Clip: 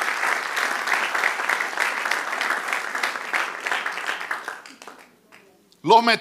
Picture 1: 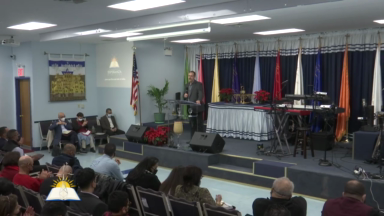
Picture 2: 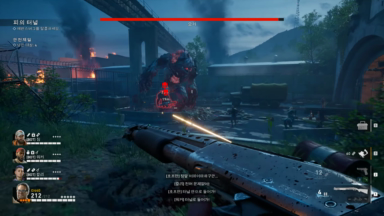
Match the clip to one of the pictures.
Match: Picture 1